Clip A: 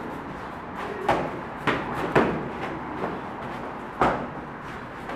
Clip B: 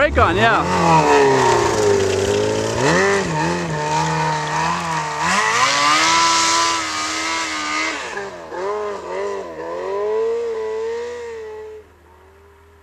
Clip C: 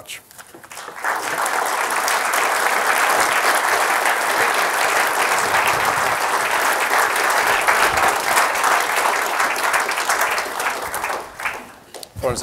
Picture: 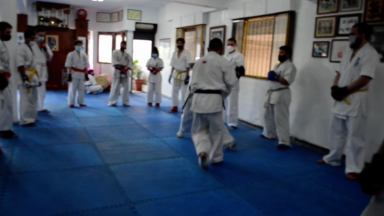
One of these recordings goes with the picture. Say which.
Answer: A